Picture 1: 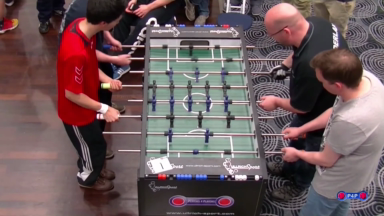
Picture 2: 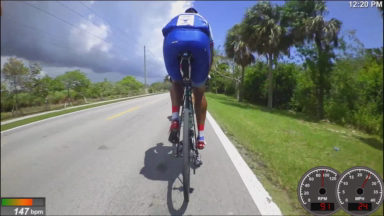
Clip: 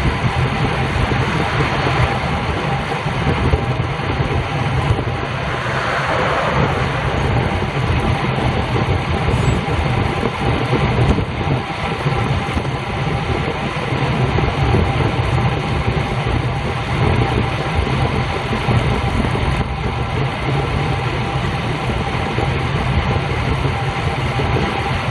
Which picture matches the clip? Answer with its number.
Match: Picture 2